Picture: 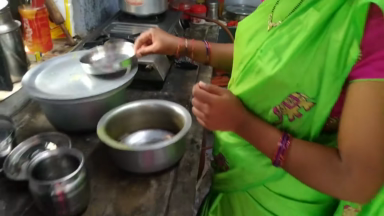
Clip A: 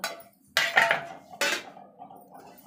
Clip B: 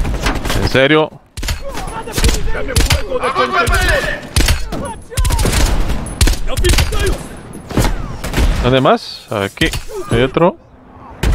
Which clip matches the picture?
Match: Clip A